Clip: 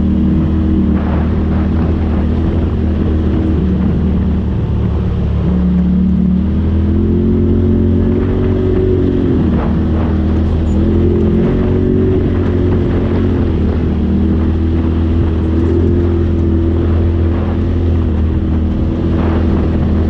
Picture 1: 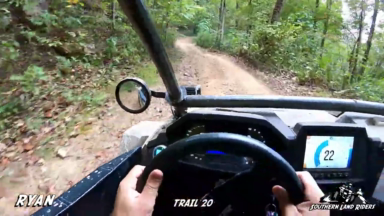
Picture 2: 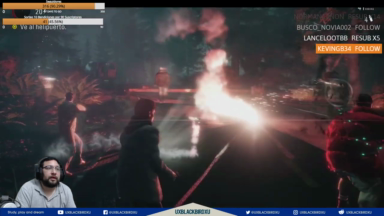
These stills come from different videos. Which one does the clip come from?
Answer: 1